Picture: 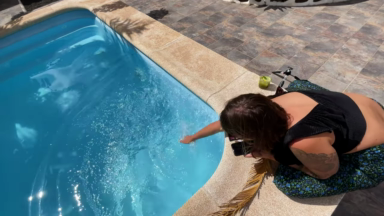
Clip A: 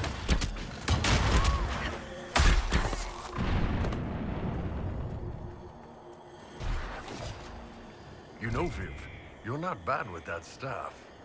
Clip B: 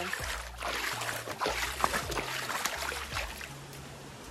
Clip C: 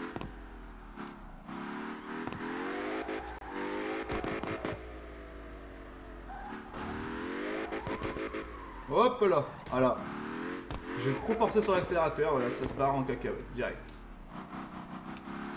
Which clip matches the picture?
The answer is B